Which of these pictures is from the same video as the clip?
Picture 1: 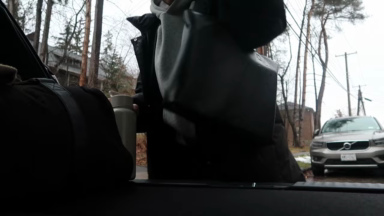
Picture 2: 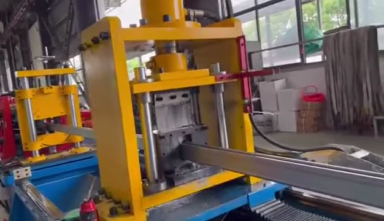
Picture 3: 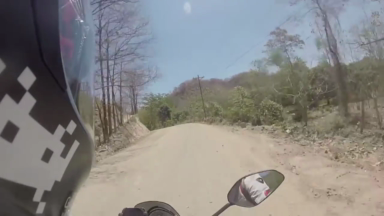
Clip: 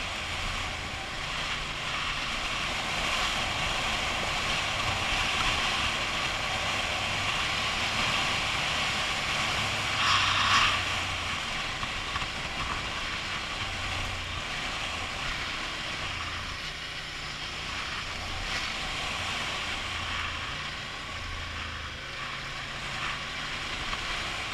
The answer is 3